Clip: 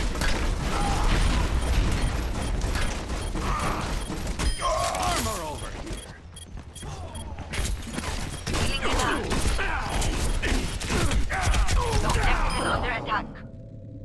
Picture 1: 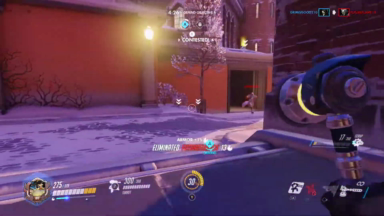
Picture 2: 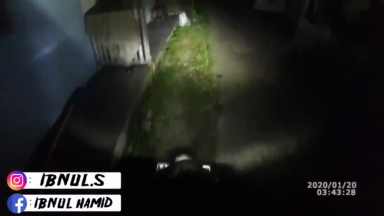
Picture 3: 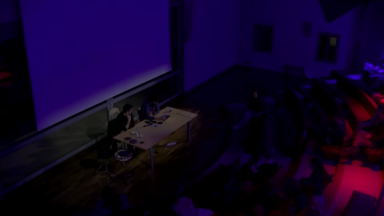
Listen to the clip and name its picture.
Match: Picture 1